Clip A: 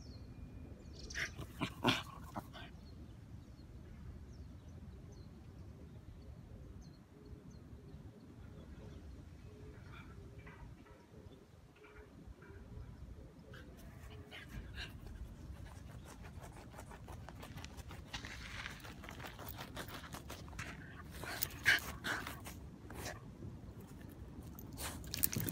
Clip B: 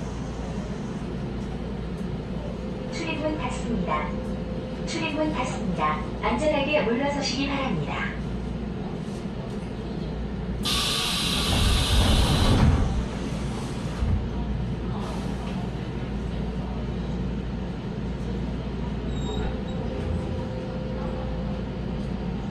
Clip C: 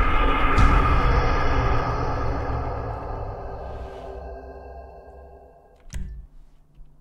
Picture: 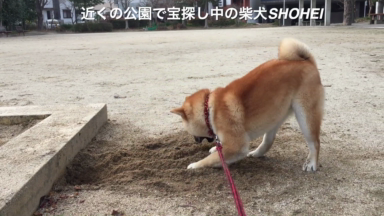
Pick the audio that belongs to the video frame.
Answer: A